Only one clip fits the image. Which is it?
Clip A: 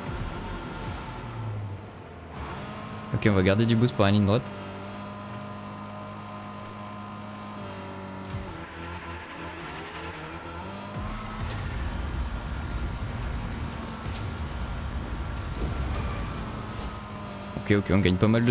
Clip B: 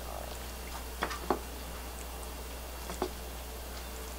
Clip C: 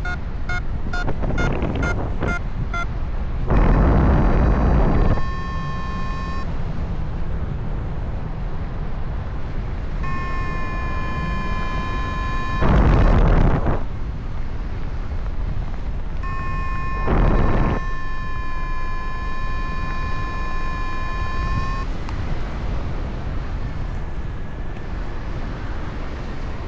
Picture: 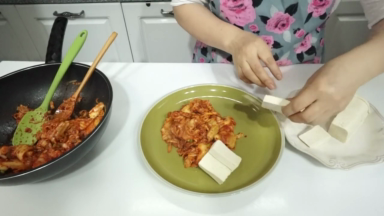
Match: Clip B